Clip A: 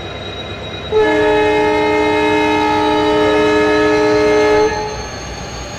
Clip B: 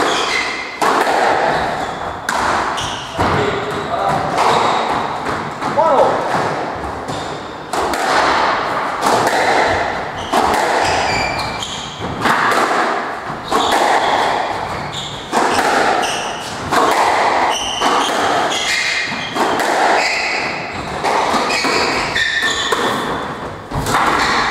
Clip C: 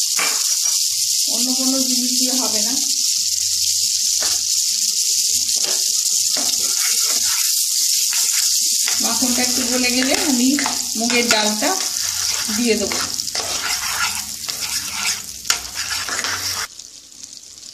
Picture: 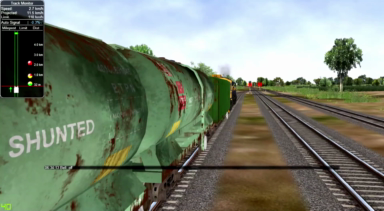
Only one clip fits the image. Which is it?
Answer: A